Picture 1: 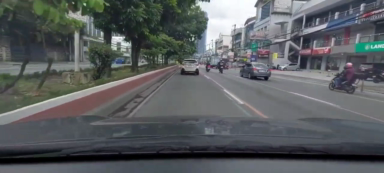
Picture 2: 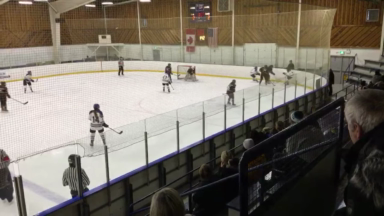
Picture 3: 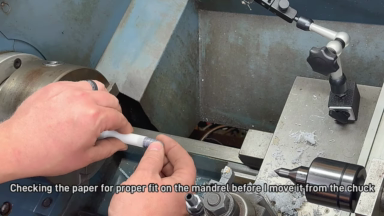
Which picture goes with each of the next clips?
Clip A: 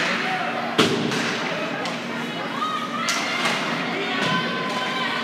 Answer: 2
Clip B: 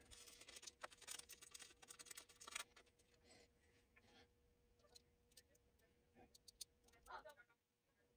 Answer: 3